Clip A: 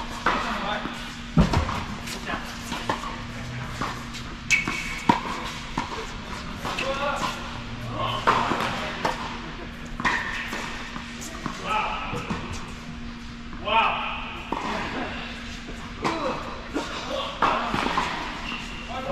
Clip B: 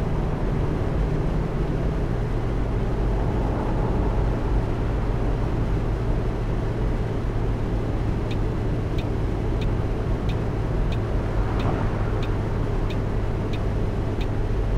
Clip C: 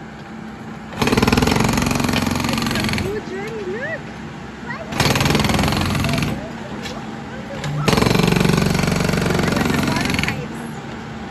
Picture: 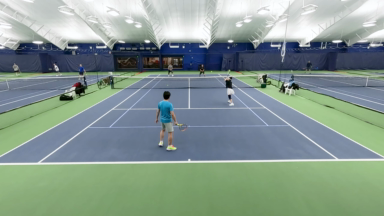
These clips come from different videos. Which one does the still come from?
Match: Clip A